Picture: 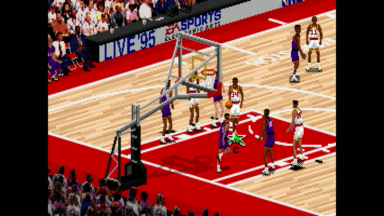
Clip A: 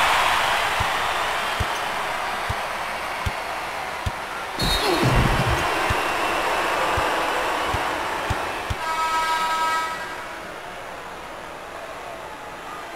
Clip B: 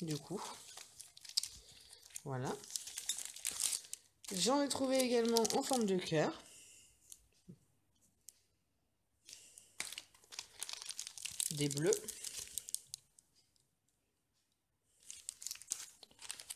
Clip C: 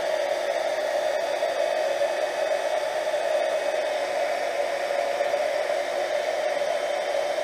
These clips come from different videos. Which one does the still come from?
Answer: A